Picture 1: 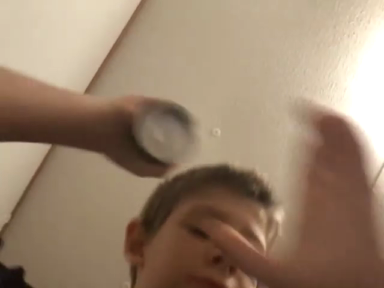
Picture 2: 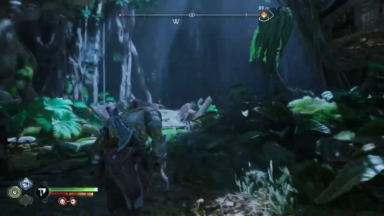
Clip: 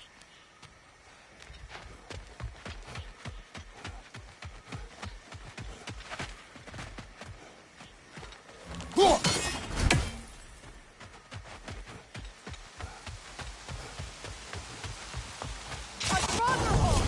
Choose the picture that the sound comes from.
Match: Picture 2